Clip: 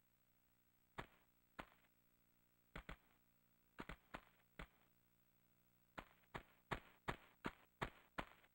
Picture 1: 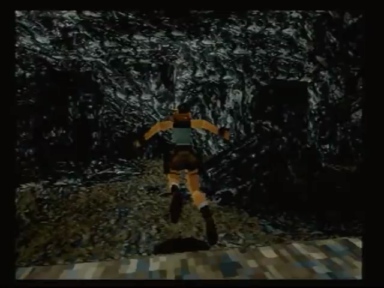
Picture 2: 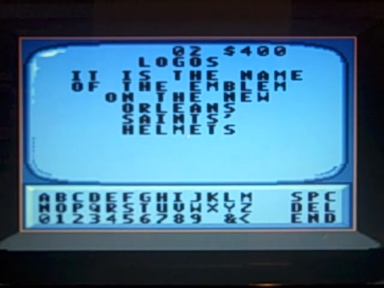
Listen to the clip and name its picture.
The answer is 1